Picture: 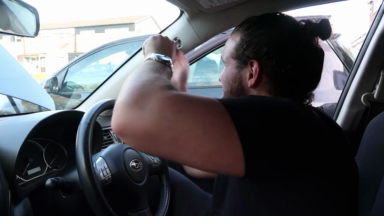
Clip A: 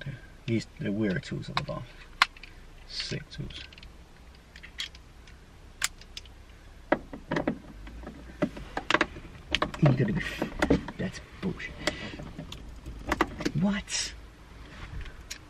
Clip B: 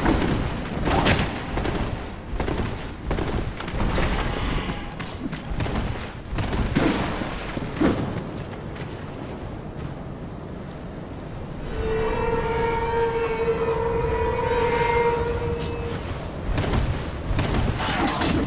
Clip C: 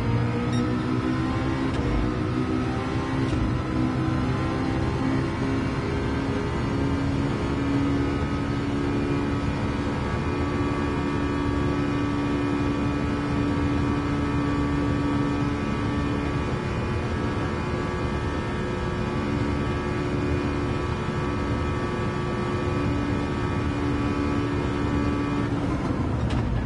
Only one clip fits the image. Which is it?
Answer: A